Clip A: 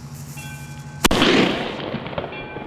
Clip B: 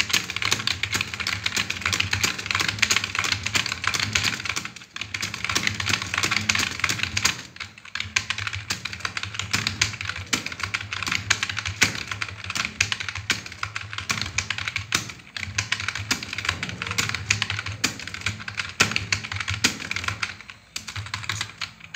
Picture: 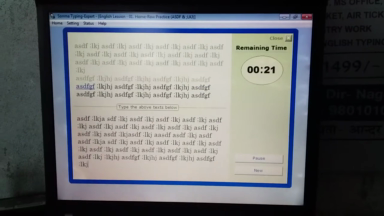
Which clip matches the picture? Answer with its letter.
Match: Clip B